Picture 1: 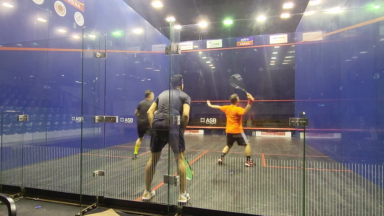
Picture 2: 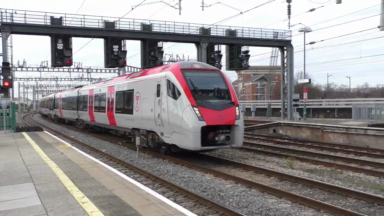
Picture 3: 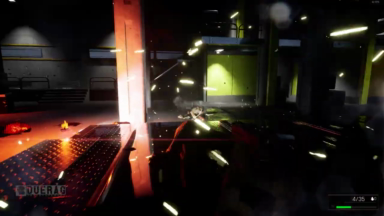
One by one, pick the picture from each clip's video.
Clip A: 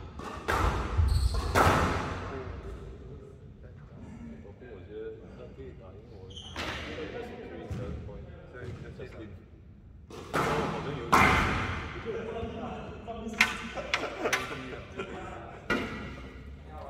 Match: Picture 1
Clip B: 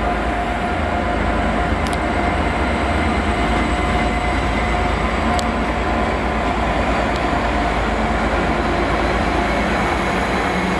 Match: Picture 2